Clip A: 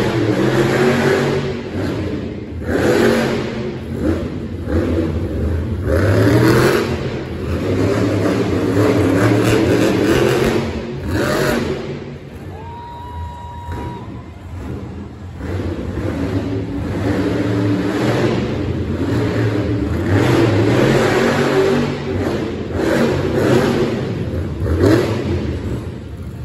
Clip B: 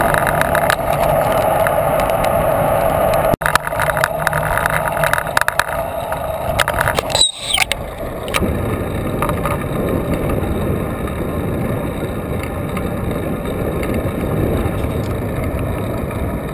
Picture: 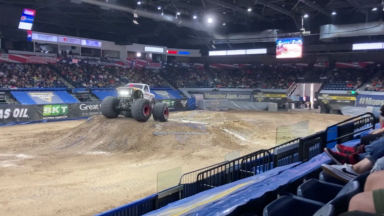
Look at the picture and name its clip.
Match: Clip A